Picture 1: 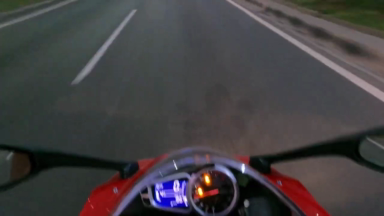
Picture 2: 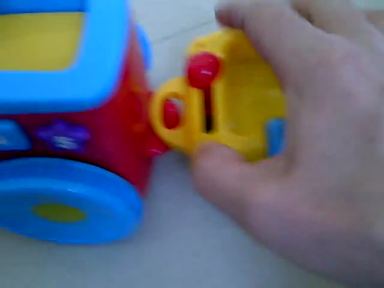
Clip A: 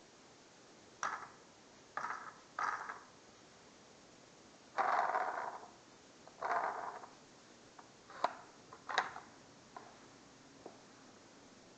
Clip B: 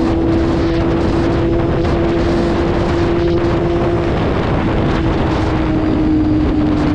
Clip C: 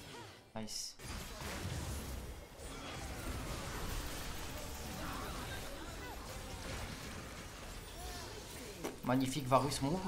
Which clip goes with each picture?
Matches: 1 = B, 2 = A